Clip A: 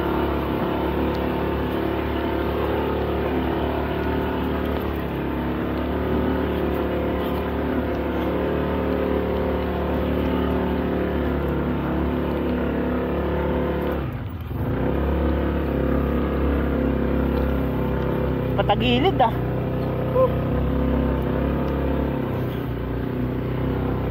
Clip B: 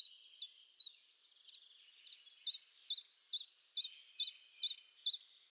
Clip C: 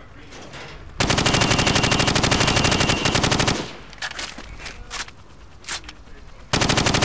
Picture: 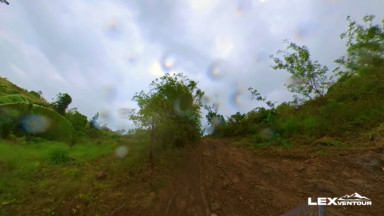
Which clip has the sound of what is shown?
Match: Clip A